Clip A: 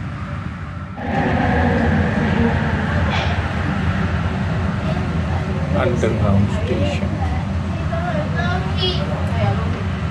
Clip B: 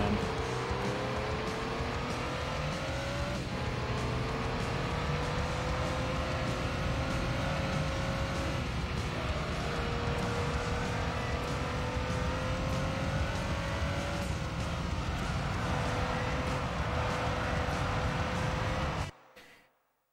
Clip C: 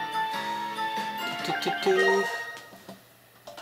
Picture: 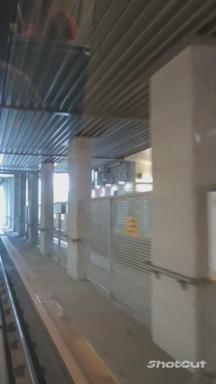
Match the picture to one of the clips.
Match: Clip A